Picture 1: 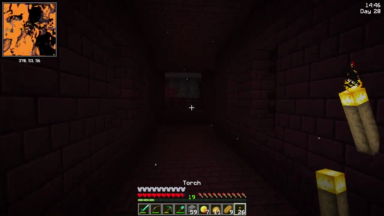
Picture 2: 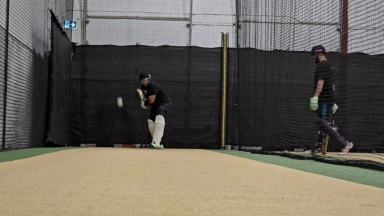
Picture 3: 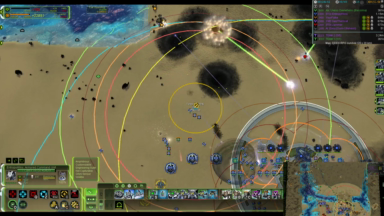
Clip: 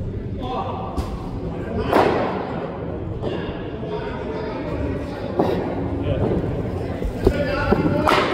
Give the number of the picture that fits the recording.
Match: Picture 2